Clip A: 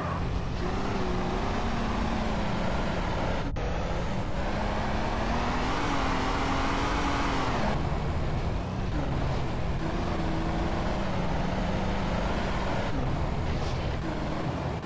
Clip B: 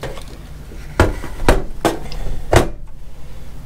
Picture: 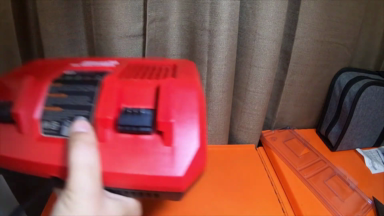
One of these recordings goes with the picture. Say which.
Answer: B